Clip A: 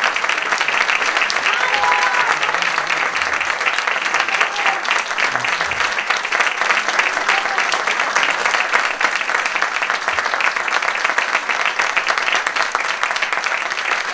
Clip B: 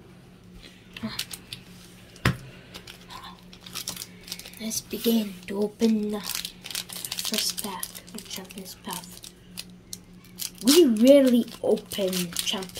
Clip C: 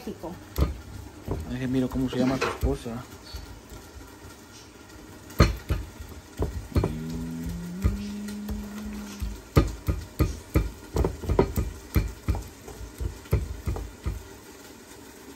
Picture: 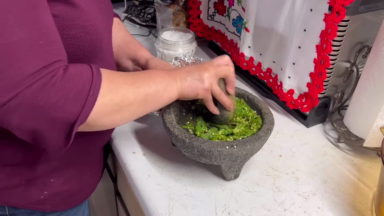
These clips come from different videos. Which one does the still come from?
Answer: C